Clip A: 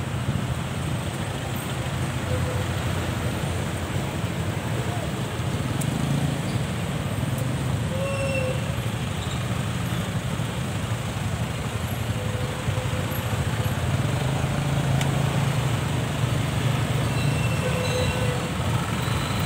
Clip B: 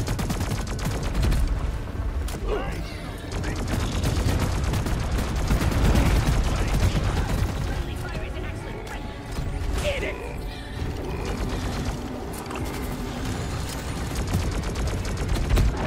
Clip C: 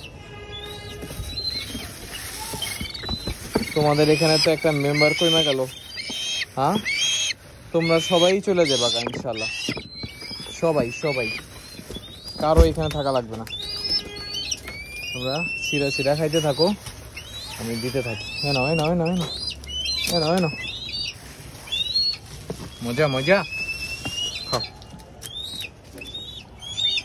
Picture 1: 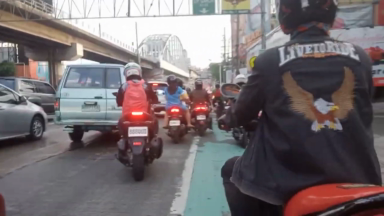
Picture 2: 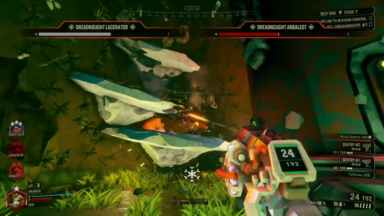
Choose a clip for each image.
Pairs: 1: A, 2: B